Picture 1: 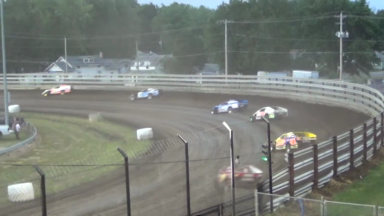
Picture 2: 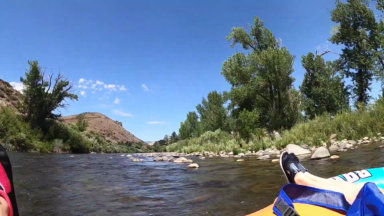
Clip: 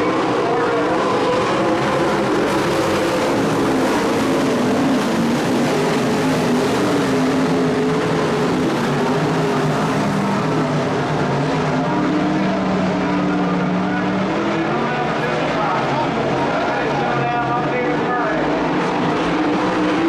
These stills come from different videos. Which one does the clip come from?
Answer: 1